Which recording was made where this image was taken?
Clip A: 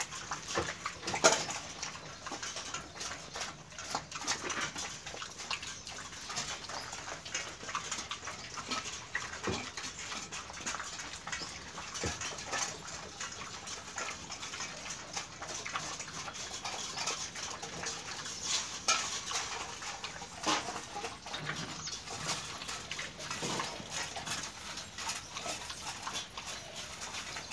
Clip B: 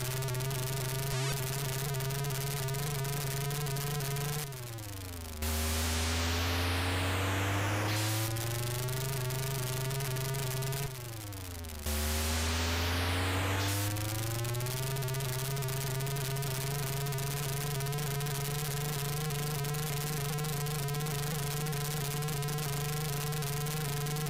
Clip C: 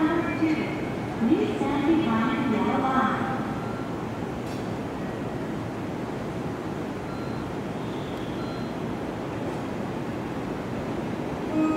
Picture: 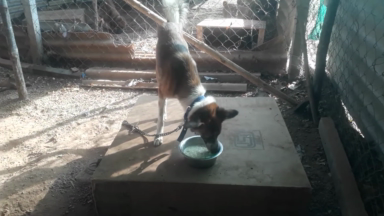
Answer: A